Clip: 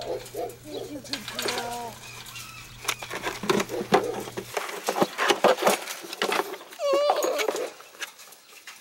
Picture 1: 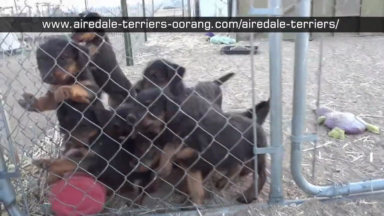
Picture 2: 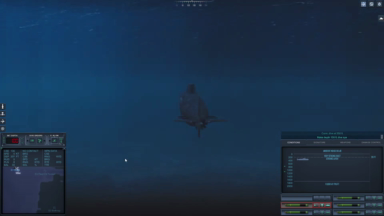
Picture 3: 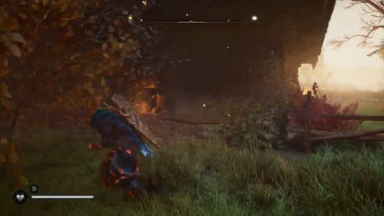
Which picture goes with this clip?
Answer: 1